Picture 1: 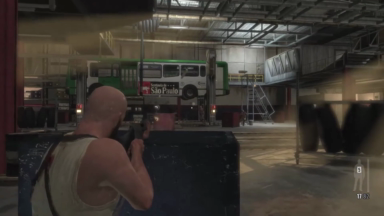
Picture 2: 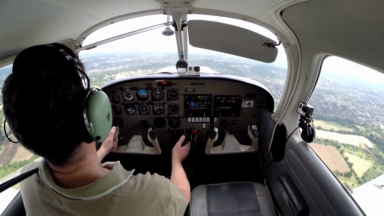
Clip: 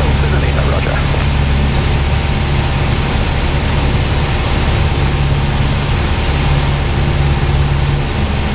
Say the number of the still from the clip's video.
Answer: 2